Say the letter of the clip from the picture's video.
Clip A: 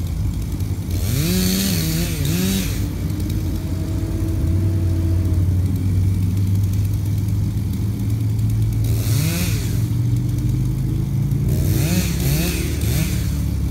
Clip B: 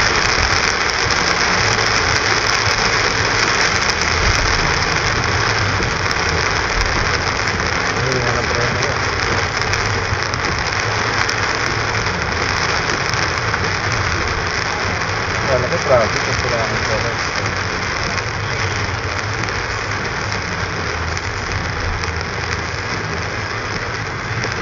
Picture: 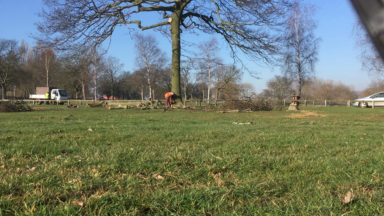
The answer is A